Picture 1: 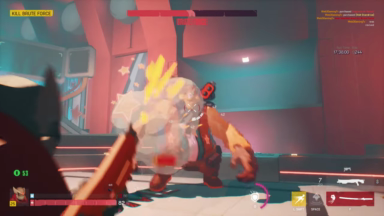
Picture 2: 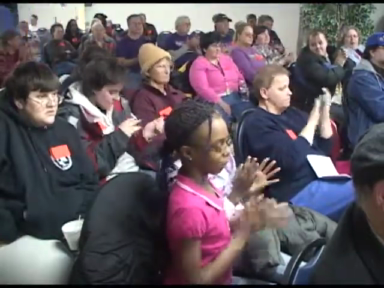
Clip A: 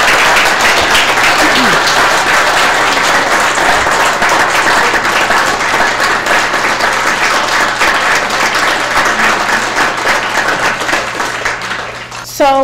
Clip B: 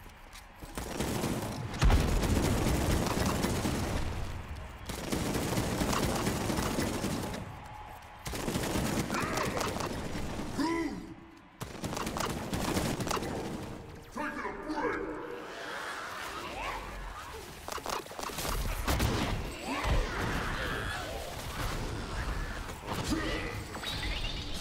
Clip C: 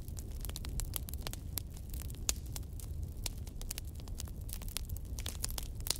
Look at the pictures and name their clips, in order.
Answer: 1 B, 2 A